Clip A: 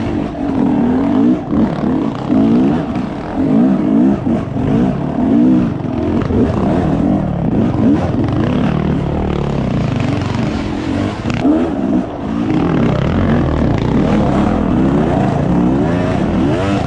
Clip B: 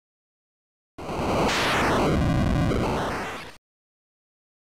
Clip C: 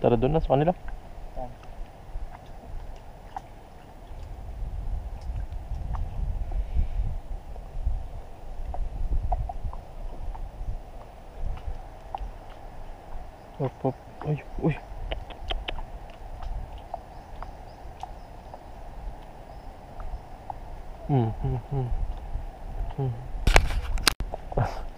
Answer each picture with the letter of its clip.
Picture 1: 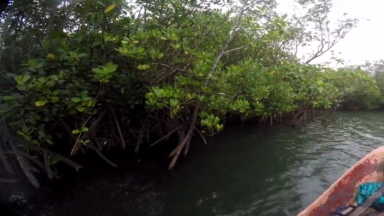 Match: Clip C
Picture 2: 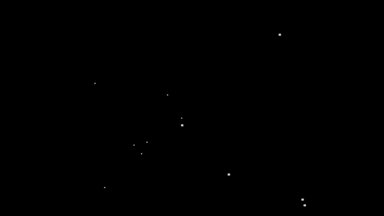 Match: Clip B